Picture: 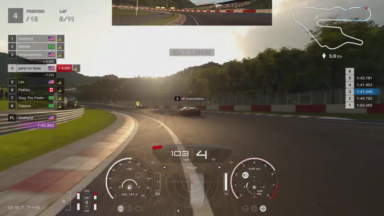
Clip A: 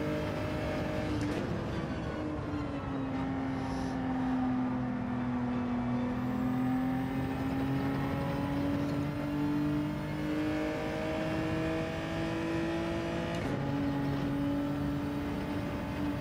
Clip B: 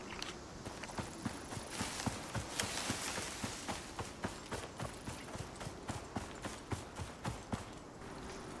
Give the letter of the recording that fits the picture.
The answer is A